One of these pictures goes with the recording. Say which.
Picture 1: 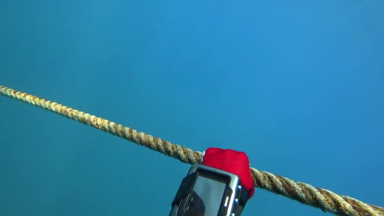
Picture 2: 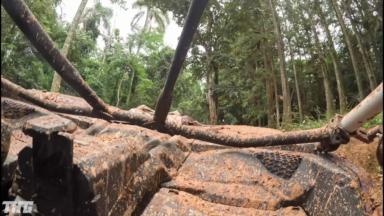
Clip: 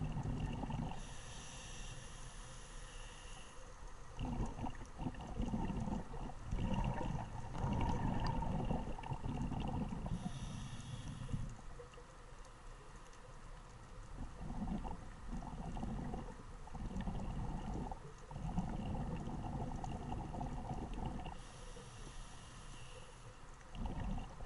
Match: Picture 1